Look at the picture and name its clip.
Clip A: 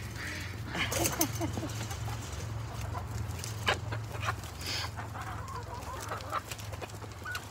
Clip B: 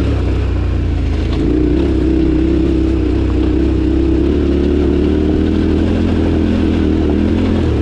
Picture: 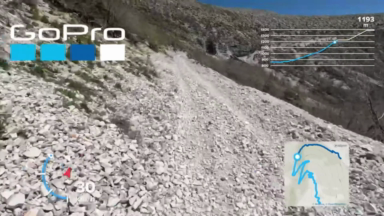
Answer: B